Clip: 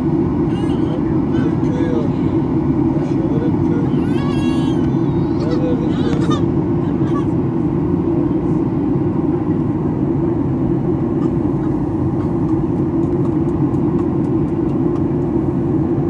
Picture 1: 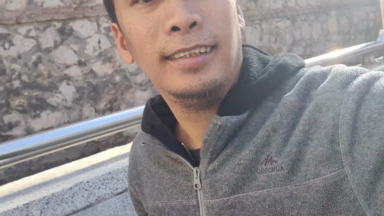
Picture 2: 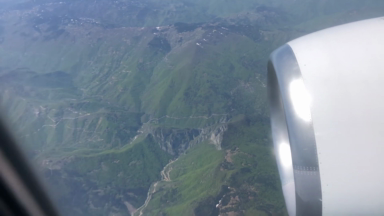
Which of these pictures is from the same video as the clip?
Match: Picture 2